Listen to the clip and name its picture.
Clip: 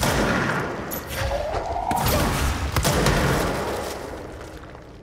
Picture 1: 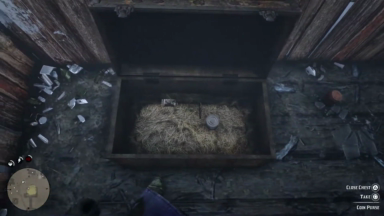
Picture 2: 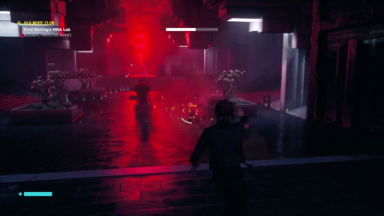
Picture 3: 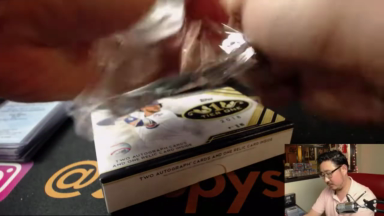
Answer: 2